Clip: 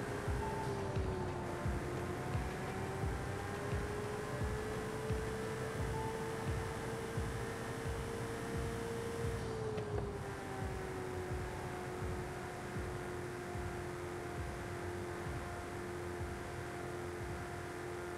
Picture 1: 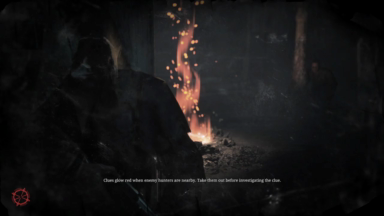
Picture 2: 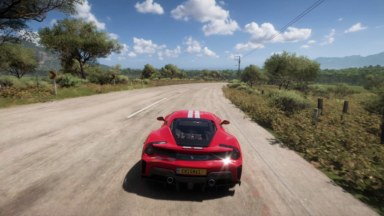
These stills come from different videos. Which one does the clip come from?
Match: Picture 2